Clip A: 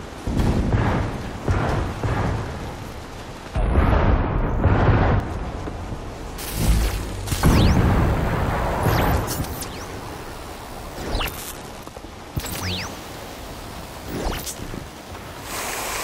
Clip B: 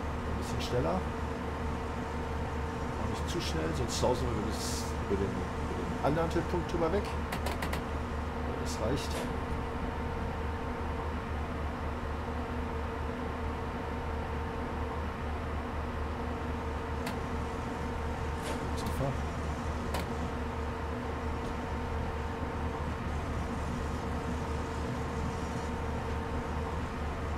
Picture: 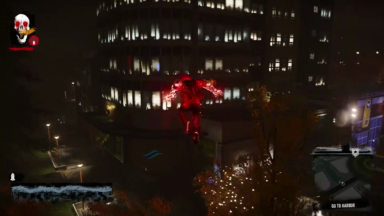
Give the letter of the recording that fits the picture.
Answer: A